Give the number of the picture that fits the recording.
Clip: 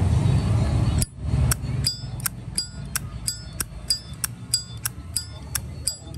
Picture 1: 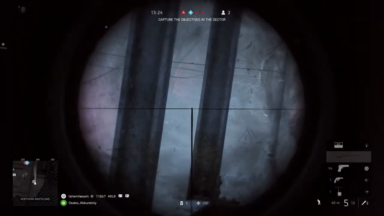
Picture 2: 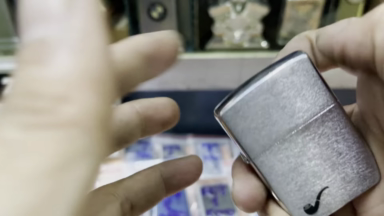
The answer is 2